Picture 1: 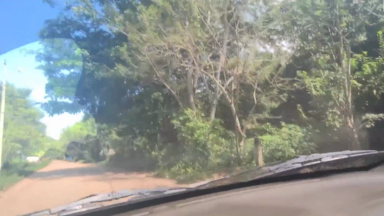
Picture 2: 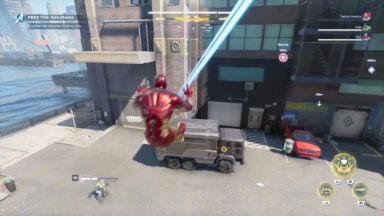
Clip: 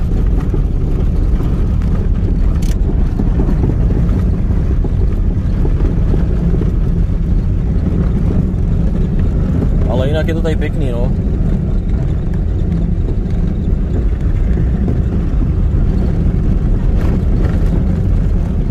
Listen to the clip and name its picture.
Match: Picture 1